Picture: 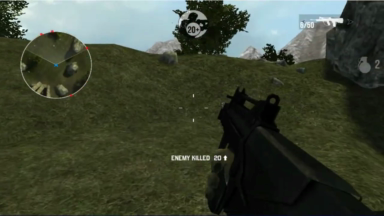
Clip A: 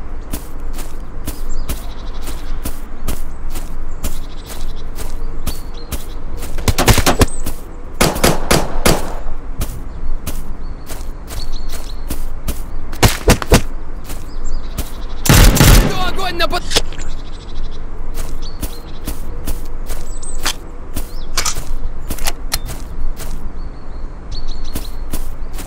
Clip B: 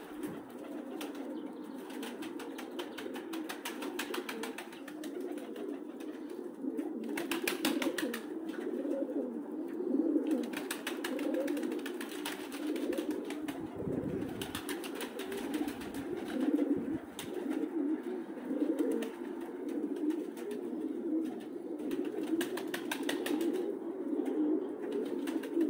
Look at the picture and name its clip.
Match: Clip A